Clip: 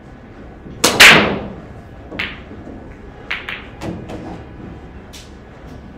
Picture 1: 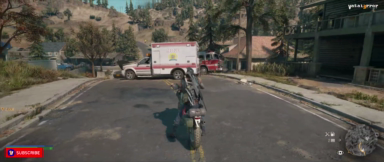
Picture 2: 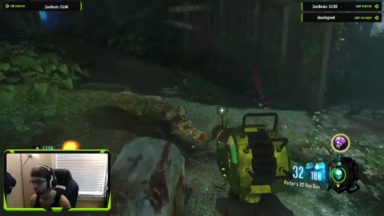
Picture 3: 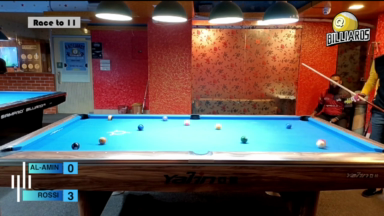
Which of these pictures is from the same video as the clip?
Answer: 3